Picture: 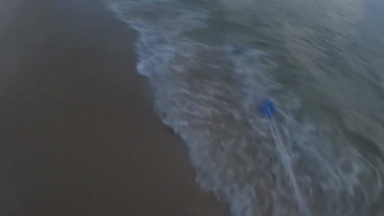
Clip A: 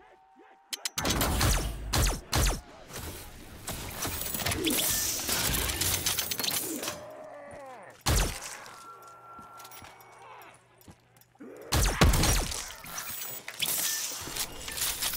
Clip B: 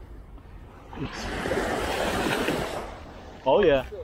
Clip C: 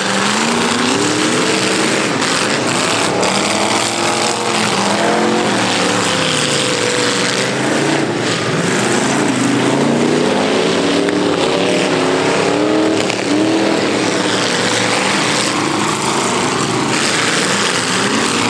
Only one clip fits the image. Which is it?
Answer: B